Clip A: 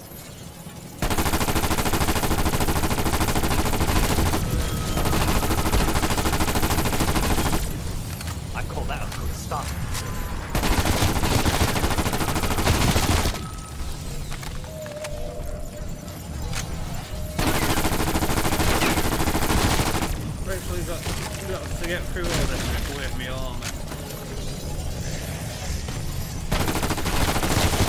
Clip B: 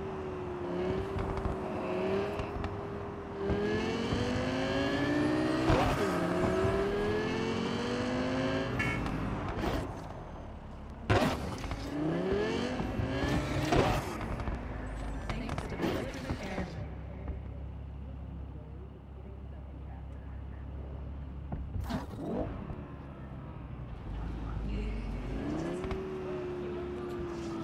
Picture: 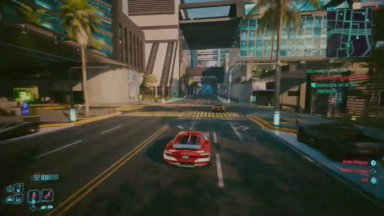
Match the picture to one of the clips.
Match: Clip B